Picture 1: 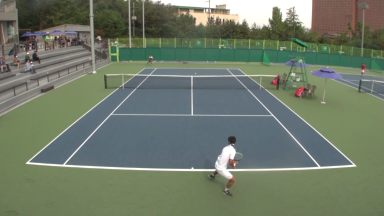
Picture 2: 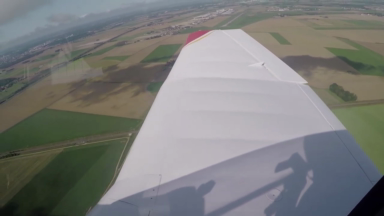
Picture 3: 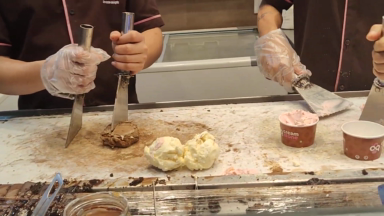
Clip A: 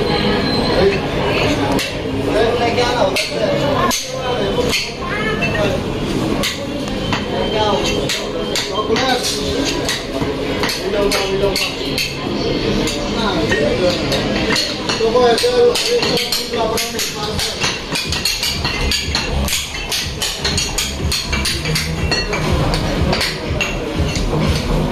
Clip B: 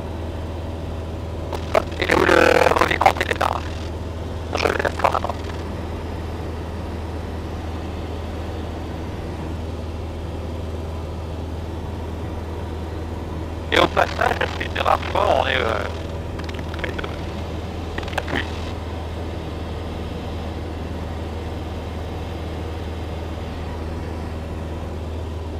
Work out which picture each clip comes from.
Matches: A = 3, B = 2